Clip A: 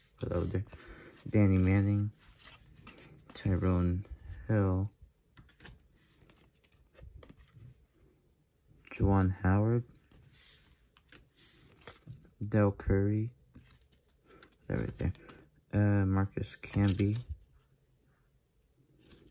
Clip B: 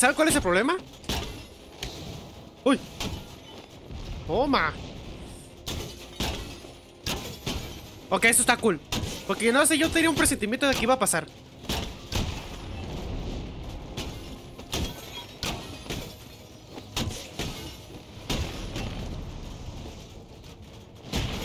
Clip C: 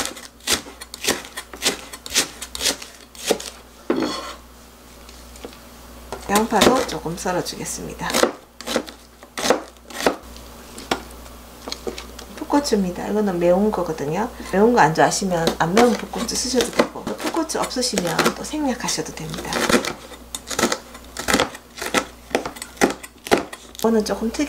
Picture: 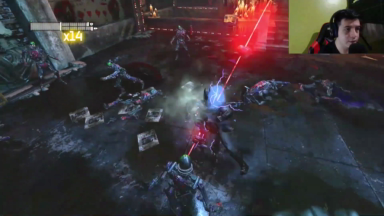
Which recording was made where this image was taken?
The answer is B